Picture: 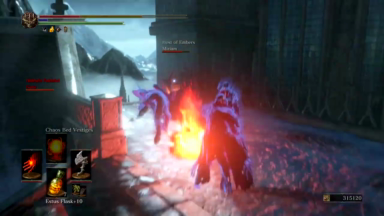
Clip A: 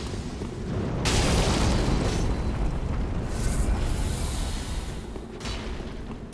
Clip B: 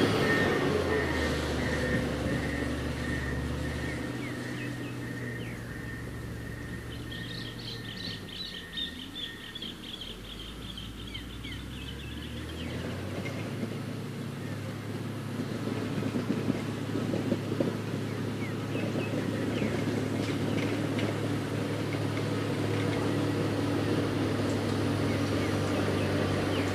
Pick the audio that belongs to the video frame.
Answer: A